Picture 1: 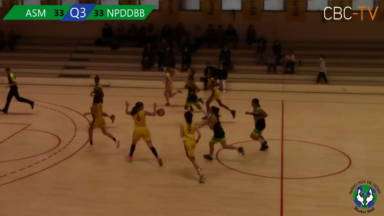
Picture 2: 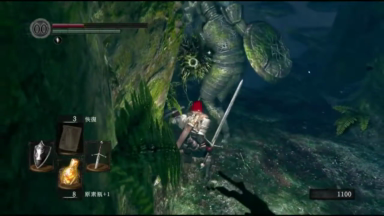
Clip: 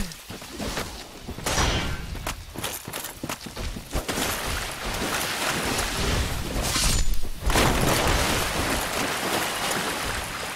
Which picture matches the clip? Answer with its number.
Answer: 2